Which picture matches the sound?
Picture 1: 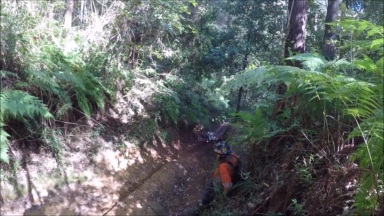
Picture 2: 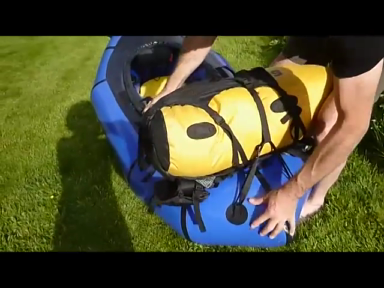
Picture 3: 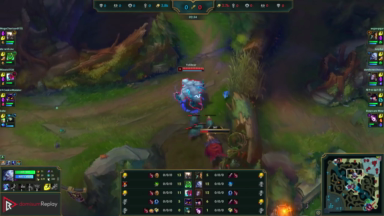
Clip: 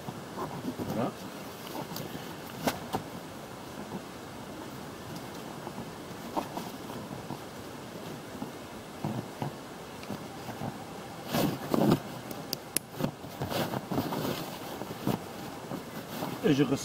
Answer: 2